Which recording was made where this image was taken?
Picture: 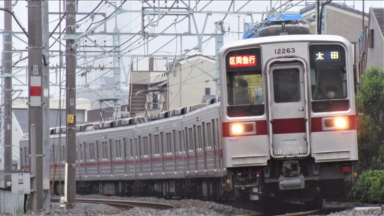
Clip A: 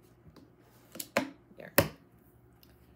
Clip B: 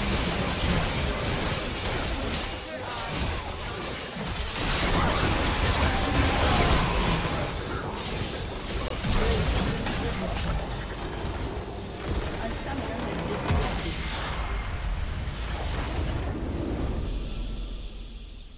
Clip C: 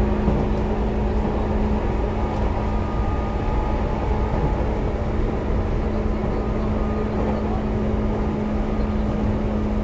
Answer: C